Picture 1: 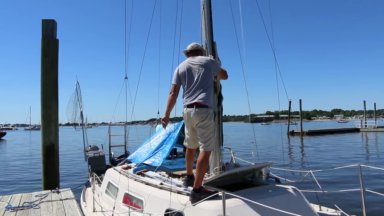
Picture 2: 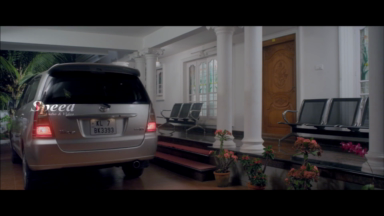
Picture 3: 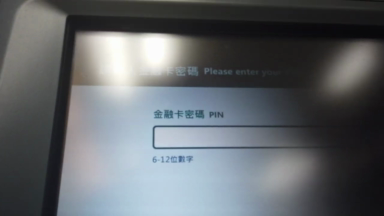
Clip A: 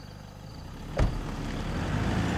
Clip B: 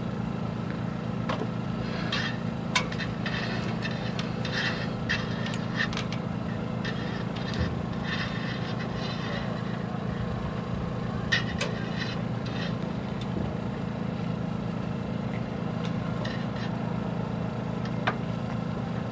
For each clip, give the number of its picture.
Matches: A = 2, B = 1